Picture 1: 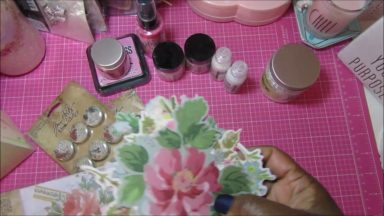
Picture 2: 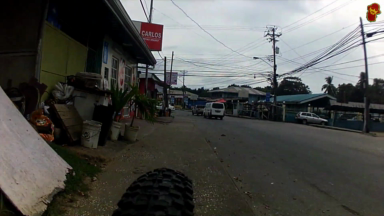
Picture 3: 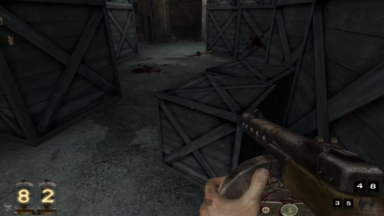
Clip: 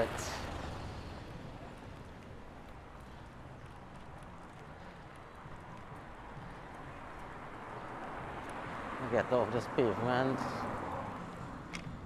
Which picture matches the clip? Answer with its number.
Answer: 2